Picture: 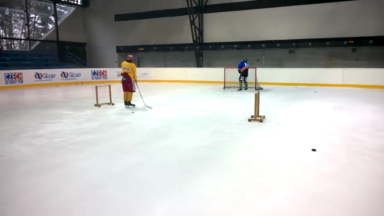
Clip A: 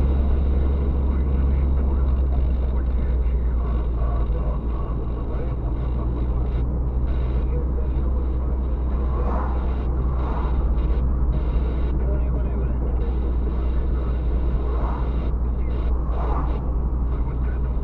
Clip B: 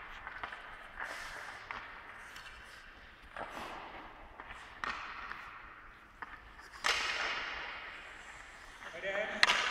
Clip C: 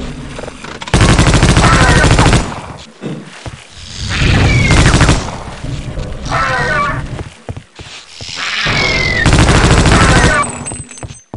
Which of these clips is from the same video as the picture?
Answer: B